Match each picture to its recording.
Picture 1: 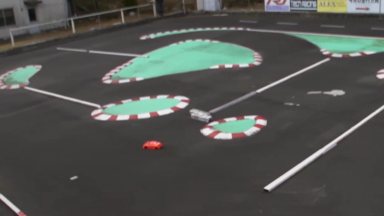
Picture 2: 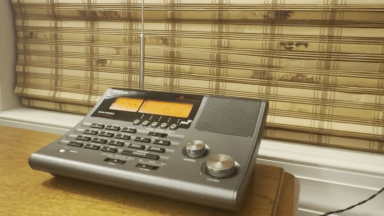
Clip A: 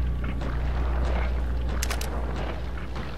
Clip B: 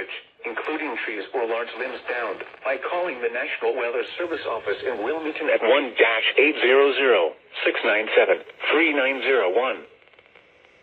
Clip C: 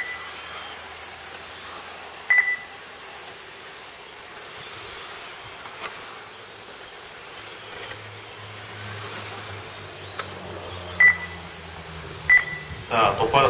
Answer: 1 C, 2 B